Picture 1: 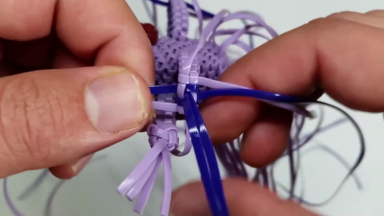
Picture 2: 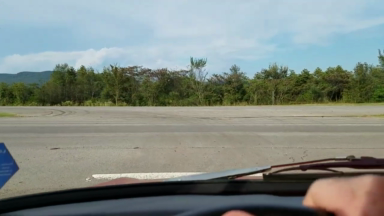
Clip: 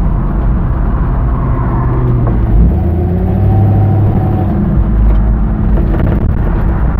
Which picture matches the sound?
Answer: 2